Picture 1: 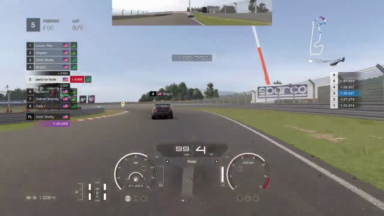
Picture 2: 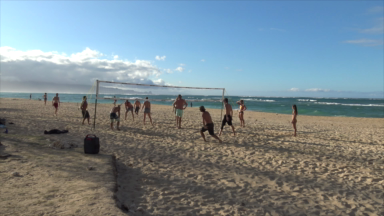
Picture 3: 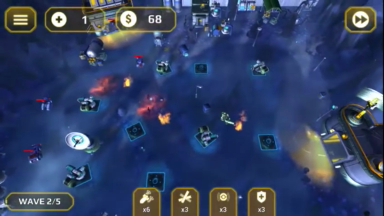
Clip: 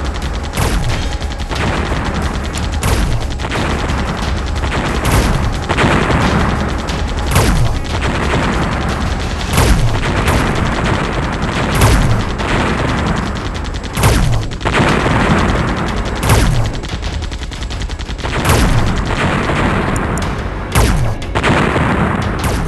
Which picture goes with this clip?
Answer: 3